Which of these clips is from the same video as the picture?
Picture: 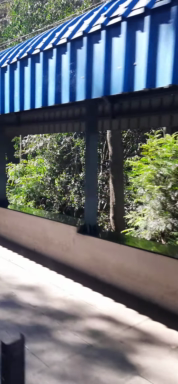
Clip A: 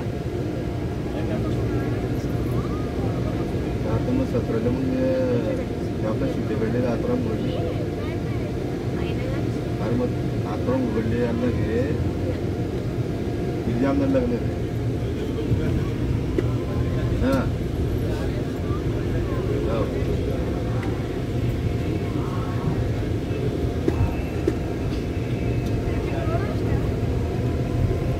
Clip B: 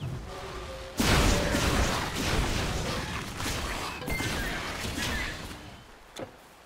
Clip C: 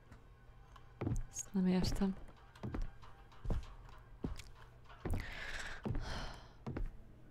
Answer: A